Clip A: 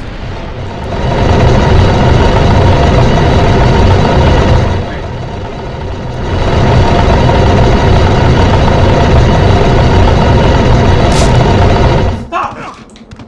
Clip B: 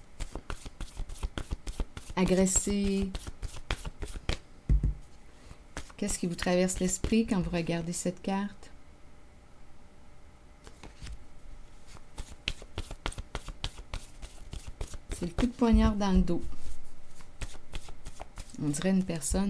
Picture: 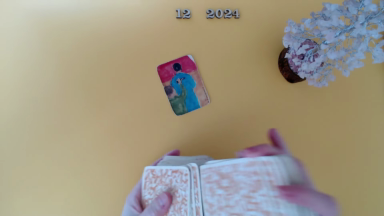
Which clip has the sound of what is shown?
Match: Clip B